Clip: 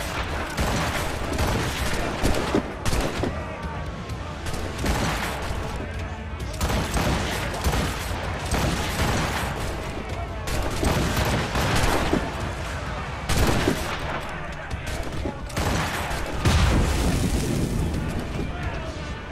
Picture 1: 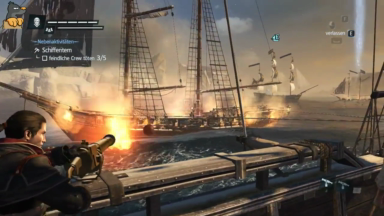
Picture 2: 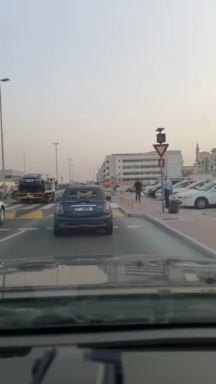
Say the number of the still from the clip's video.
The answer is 1